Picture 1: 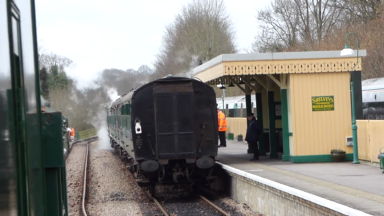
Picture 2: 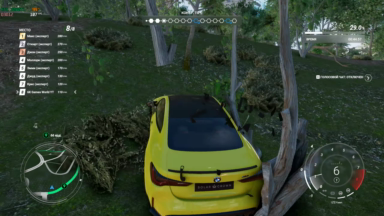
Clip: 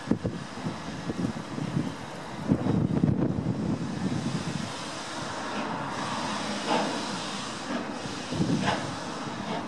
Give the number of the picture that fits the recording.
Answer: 1